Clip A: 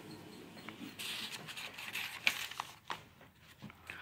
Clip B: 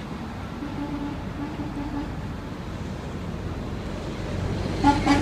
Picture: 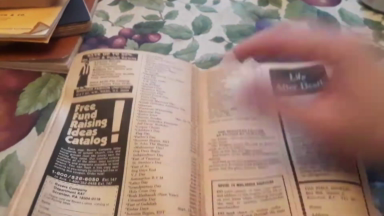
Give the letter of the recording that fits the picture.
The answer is A